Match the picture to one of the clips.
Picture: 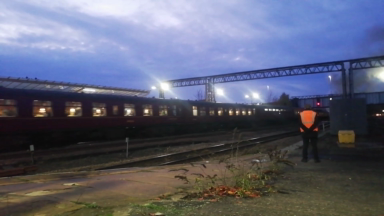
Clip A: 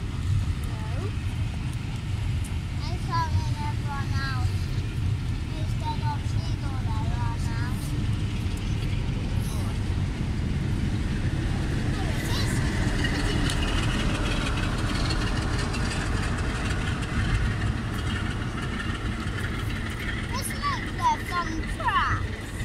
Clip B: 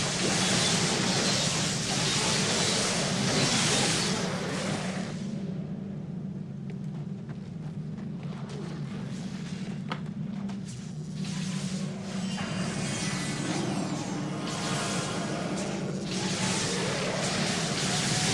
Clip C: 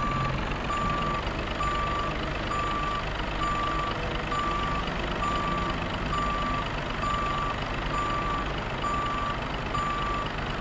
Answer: A